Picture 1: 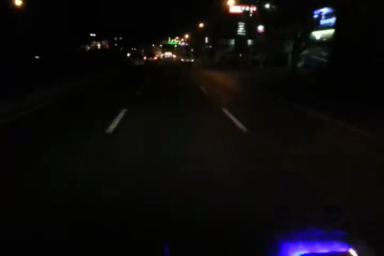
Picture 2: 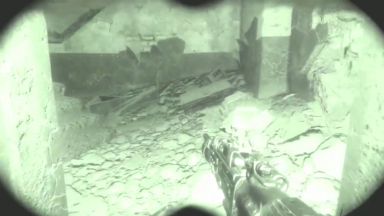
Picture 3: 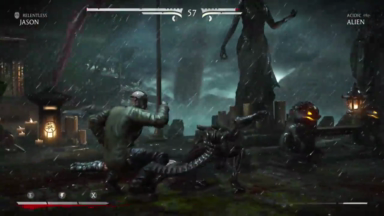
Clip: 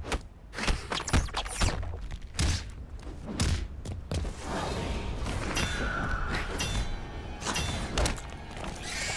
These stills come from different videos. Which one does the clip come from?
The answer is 3